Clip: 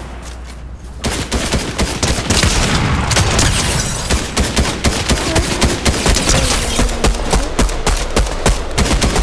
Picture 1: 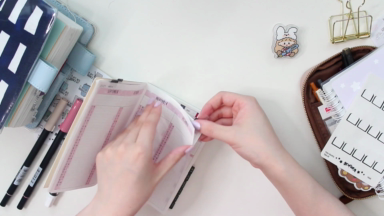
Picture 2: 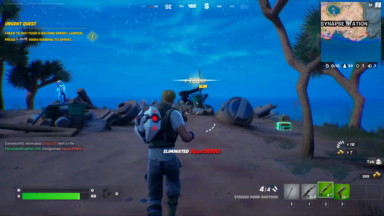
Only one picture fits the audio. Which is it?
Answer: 2